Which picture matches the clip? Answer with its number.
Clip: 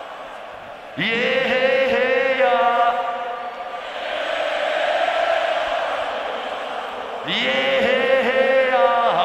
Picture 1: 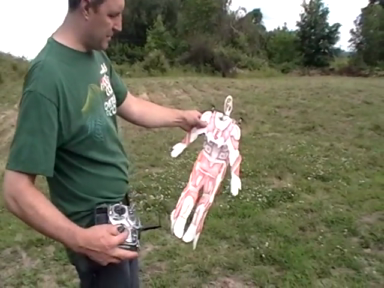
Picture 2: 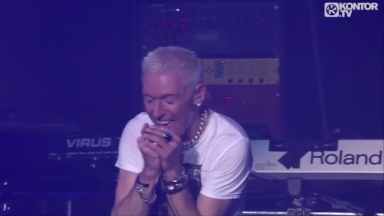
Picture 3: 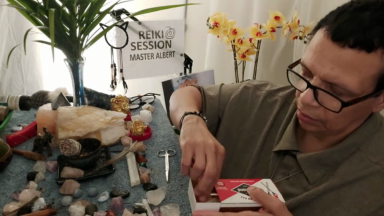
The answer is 2